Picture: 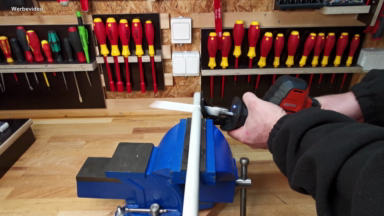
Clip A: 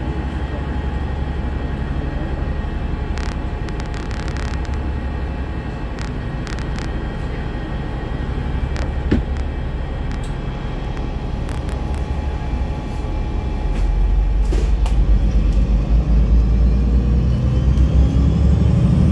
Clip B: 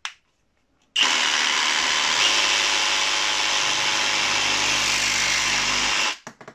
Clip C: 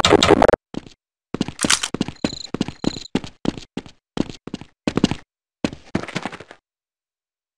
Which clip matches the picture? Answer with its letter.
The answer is B